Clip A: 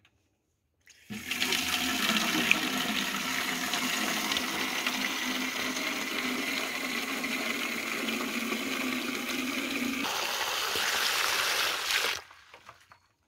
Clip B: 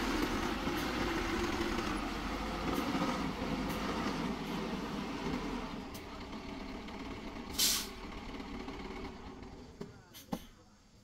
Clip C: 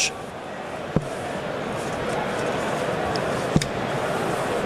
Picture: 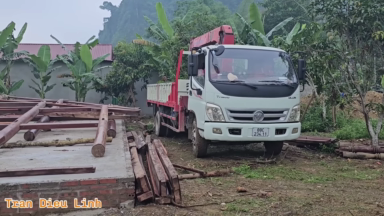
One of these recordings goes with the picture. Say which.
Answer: B